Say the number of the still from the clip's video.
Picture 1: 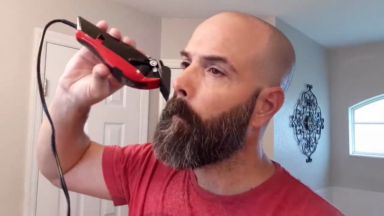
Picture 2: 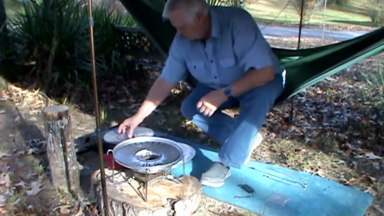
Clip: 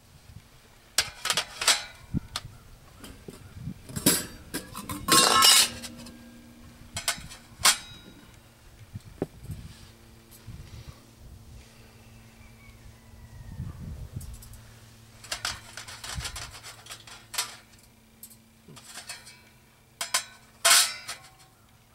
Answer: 2